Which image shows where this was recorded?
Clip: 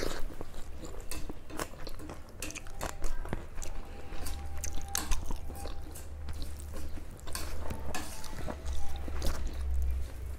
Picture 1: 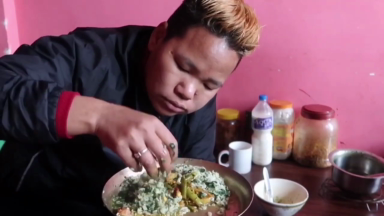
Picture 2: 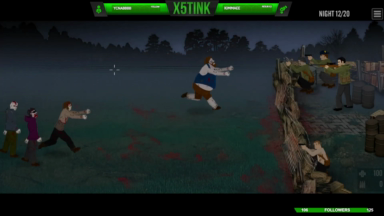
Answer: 1